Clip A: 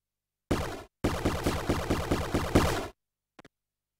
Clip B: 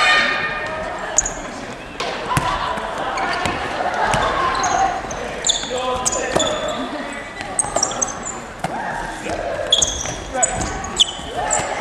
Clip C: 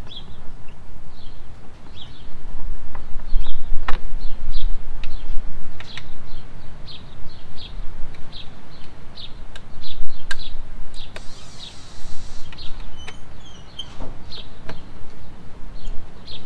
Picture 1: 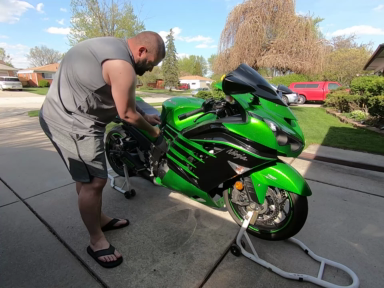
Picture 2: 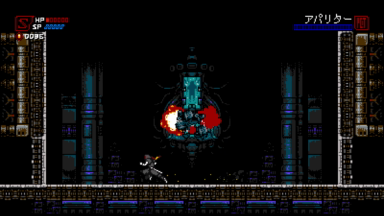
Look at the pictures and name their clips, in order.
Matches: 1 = C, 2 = A